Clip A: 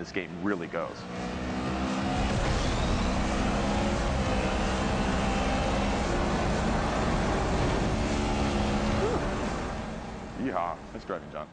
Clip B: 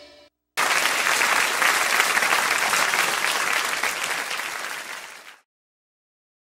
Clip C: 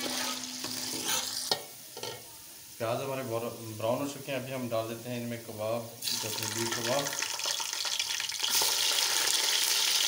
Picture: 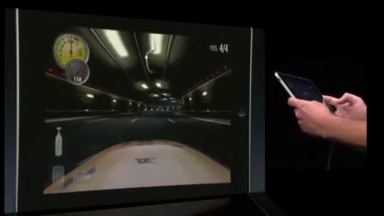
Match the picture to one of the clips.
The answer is A